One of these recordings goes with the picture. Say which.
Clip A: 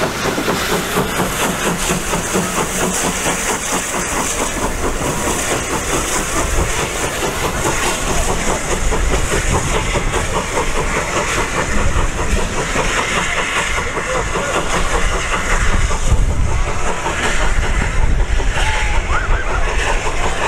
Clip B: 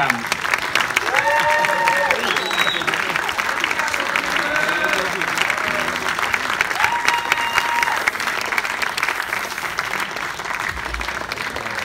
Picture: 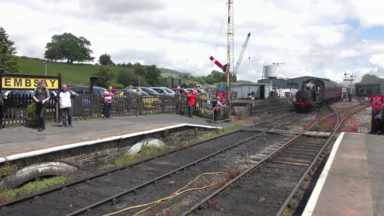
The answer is A